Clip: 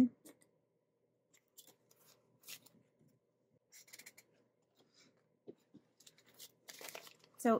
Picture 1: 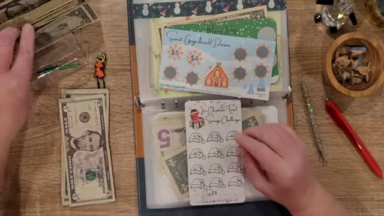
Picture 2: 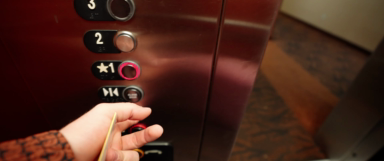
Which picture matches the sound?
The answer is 1